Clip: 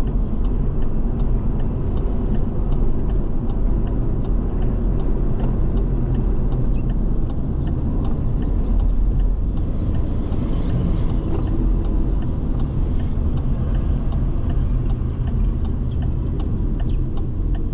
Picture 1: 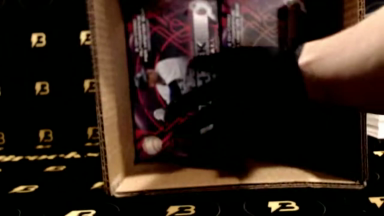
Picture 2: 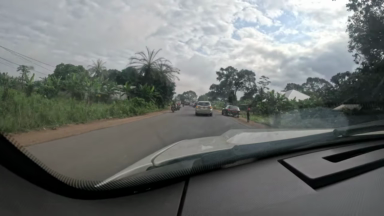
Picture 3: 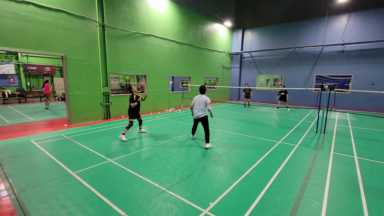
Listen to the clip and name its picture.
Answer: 2